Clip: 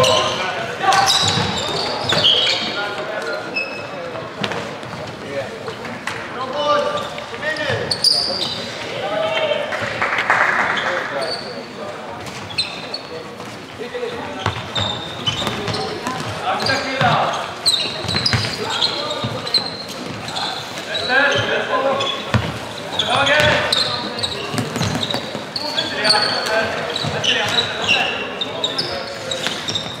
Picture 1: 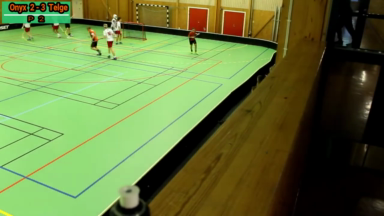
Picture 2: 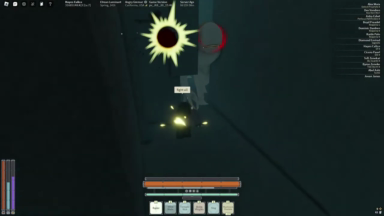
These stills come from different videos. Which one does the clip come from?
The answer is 1